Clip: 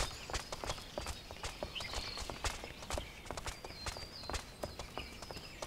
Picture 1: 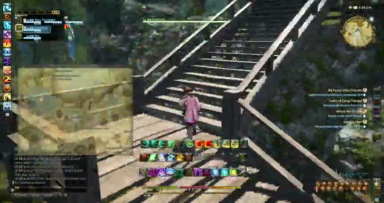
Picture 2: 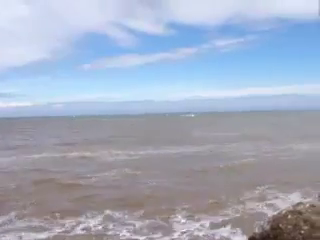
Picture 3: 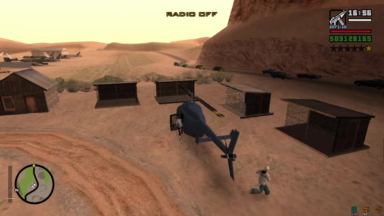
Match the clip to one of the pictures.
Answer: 1